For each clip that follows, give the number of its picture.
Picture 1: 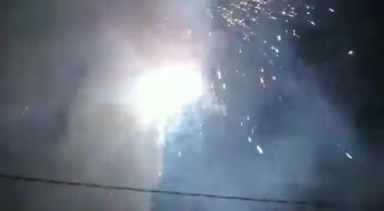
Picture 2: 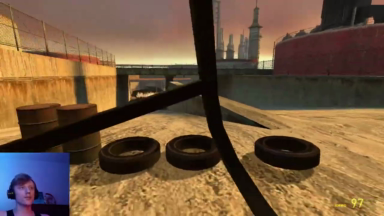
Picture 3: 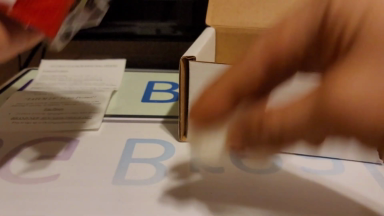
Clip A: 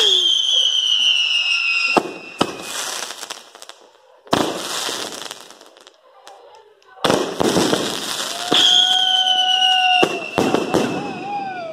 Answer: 1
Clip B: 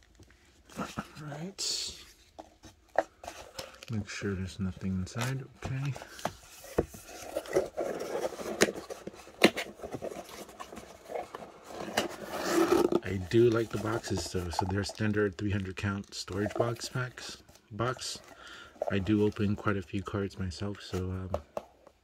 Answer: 3